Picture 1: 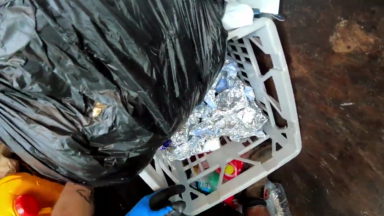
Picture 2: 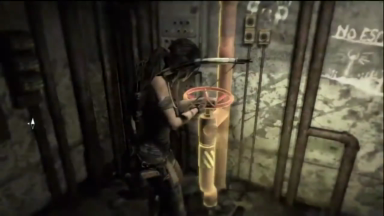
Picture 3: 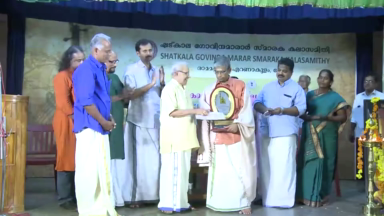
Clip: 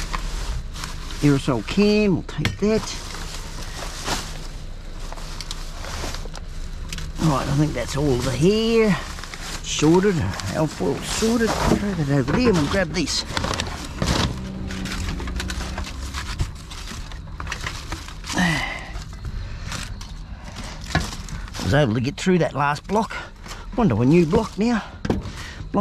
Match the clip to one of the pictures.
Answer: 1